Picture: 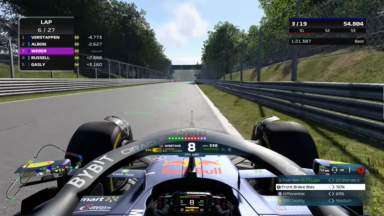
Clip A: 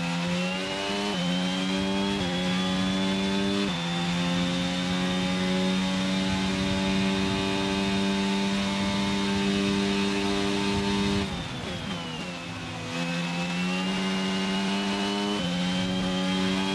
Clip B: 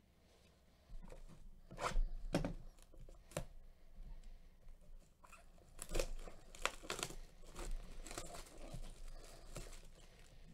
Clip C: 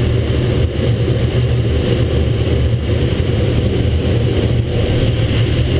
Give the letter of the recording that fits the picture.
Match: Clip A